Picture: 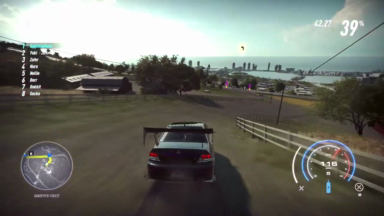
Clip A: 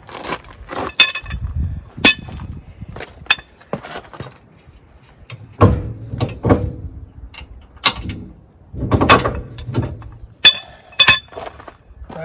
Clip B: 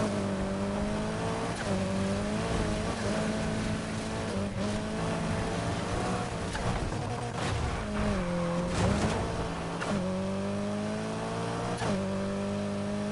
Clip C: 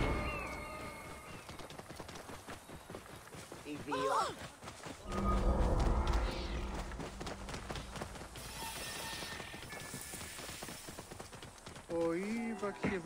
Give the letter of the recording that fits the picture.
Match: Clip B